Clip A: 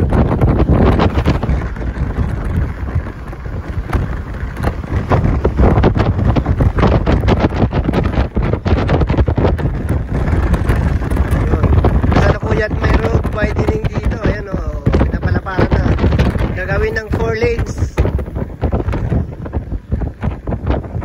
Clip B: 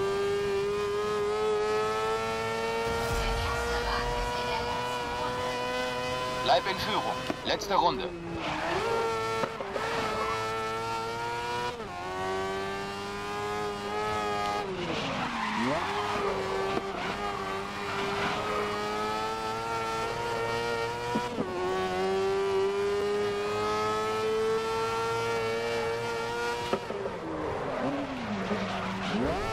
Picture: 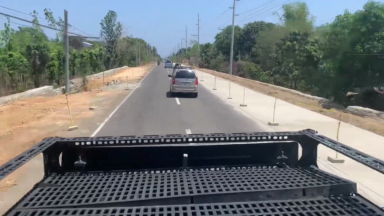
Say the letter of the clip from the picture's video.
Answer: A